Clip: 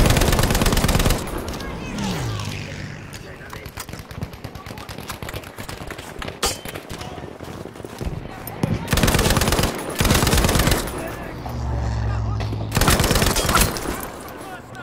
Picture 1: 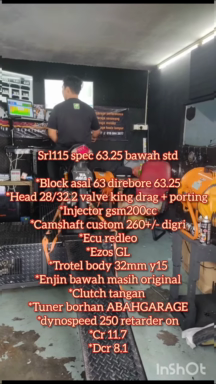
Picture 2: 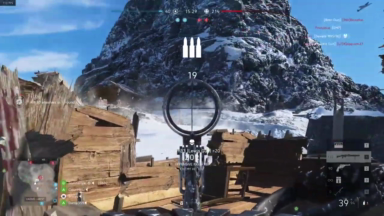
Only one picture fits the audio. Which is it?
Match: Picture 2